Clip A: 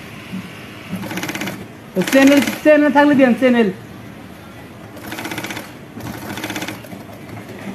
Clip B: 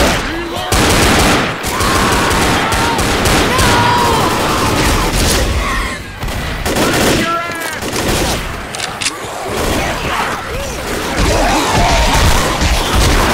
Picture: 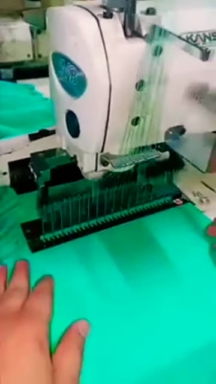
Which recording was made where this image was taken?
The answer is A